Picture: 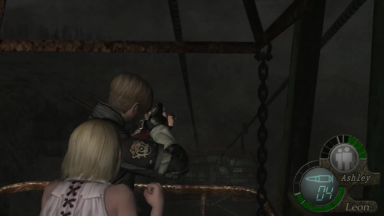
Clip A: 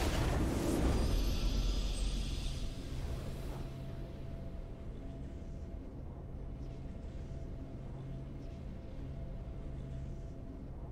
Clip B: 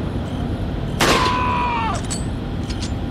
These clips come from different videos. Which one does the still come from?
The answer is B